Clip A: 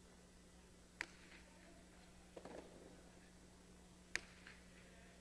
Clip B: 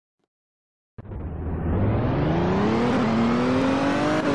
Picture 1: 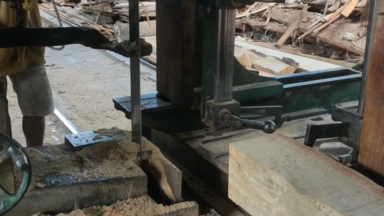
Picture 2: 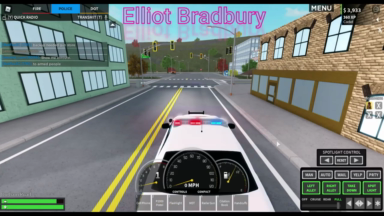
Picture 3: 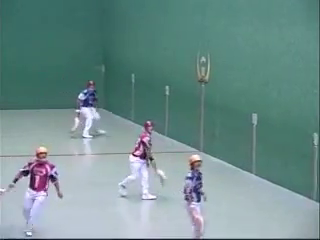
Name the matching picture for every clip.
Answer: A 3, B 2